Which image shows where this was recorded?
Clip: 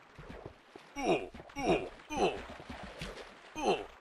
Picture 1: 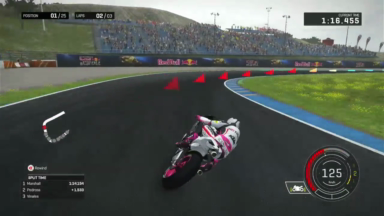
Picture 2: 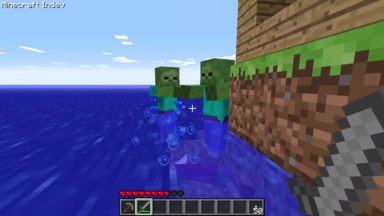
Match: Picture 2